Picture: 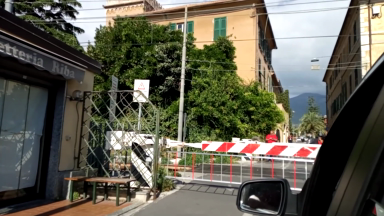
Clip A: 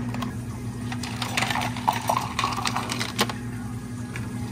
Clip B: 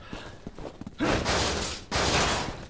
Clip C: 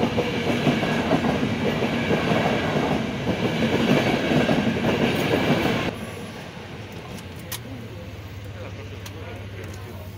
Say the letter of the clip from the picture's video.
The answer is C